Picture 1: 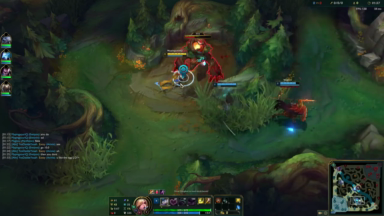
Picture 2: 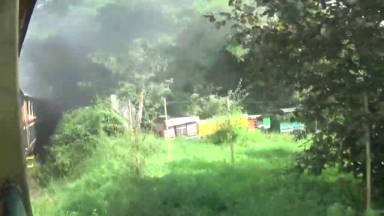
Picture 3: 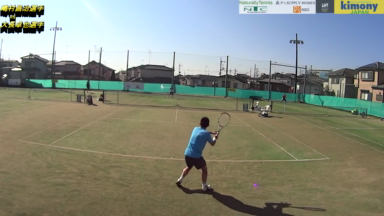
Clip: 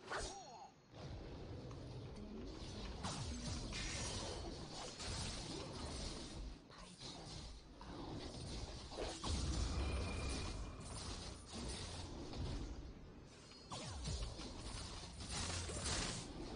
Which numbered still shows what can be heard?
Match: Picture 1